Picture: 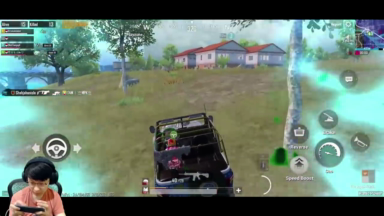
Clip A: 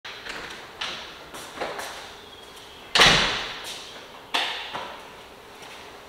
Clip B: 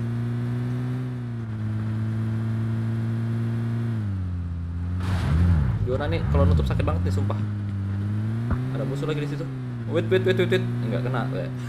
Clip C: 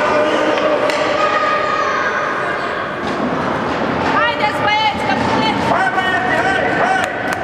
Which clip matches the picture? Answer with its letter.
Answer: B